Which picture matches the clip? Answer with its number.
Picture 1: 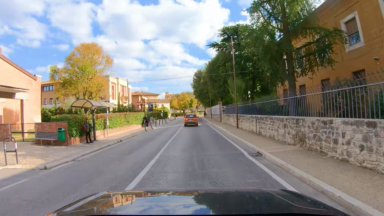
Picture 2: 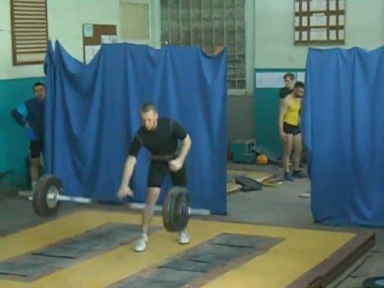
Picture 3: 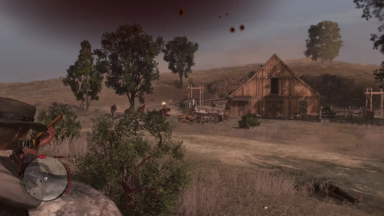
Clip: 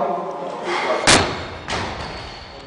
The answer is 2